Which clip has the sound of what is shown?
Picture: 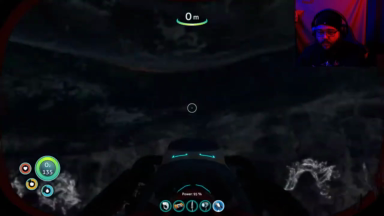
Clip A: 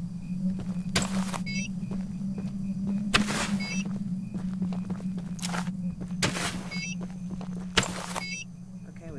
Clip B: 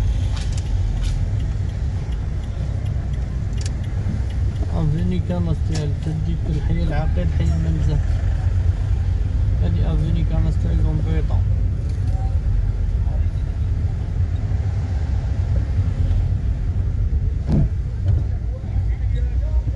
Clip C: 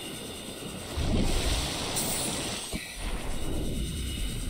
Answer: C